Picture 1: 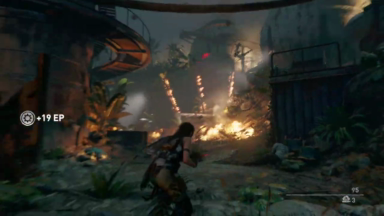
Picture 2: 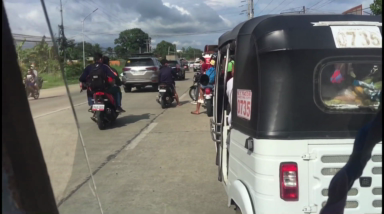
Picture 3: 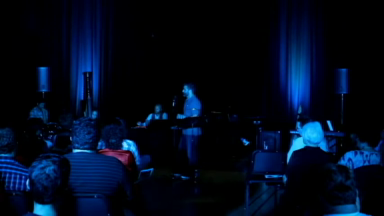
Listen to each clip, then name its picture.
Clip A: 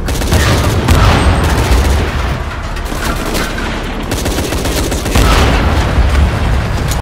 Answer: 1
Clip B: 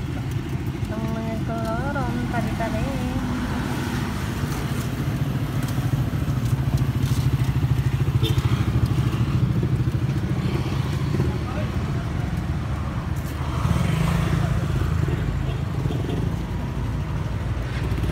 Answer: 2